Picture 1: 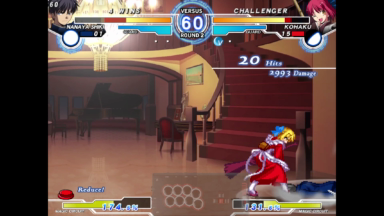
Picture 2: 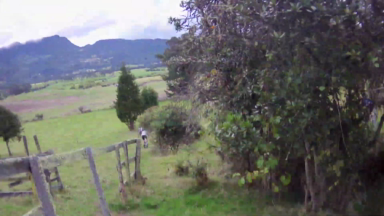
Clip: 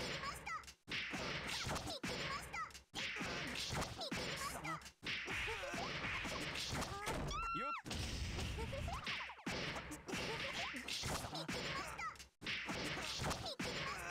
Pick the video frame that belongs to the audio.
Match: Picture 1